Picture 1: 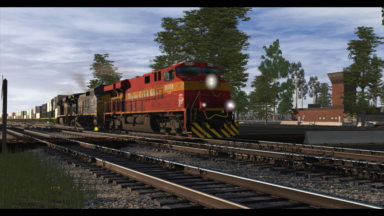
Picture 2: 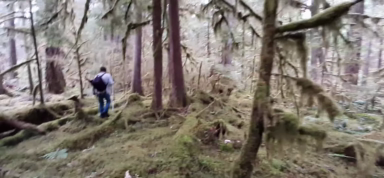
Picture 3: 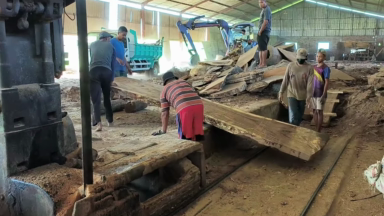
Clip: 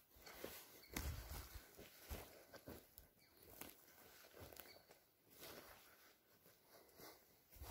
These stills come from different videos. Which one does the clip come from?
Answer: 2